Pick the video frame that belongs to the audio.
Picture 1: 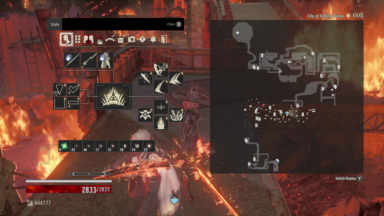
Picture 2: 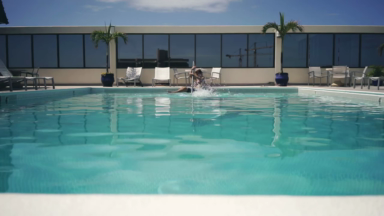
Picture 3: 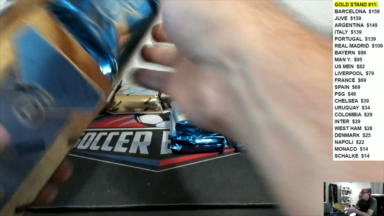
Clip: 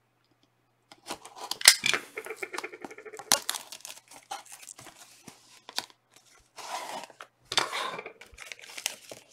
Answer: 3